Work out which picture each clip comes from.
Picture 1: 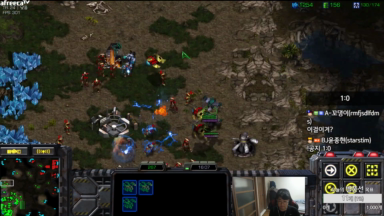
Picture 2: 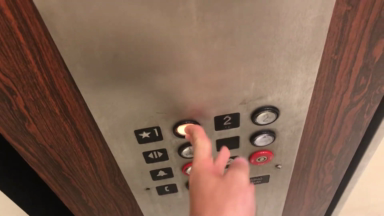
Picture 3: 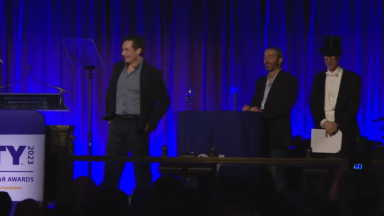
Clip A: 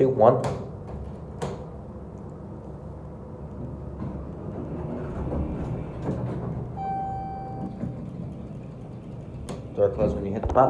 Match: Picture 2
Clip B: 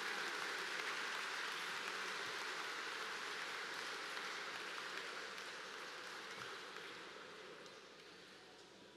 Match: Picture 3